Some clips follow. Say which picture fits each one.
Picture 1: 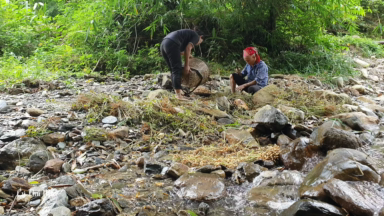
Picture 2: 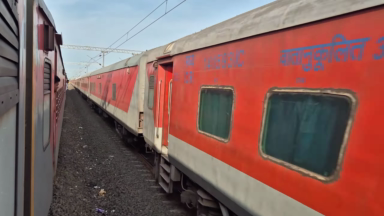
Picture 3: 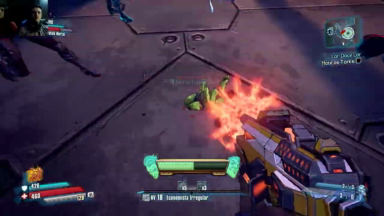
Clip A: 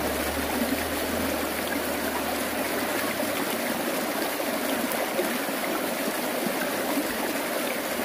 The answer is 1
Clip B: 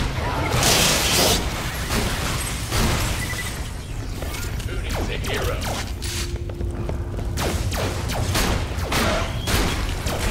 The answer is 3